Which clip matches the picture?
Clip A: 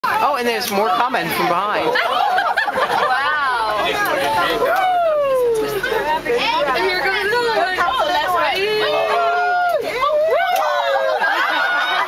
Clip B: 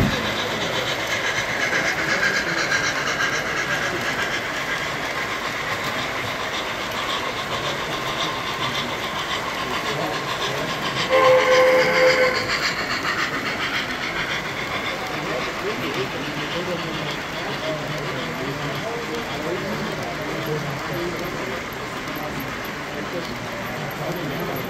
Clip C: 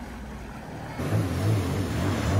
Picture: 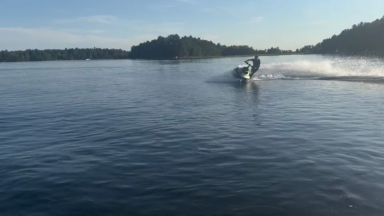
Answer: C